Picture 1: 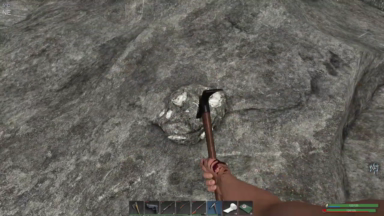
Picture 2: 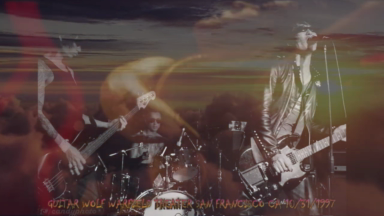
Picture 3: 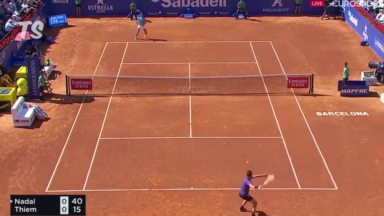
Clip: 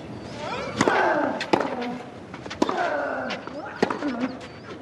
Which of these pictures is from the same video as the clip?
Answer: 3